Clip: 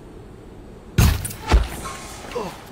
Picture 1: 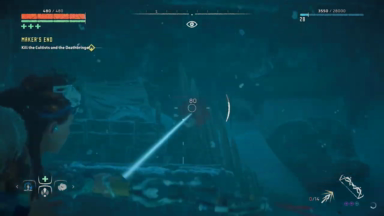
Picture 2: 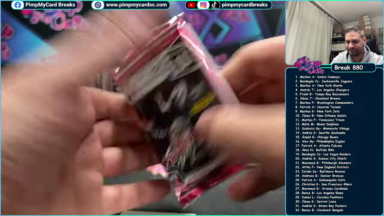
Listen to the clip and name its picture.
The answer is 1